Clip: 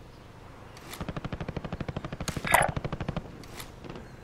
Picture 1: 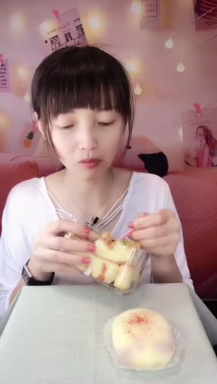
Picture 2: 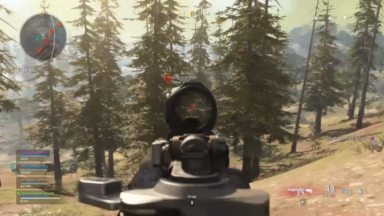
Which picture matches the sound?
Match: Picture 2